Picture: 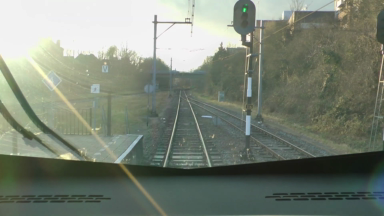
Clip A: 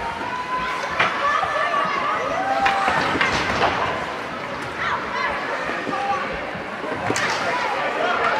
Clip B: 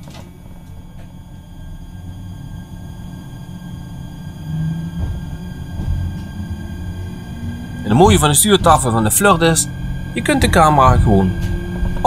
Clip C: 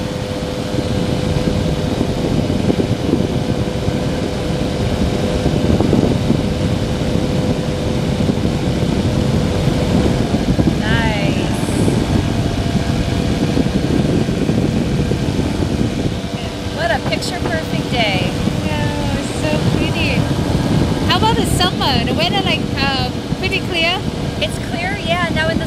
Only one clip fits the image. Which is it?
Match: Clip B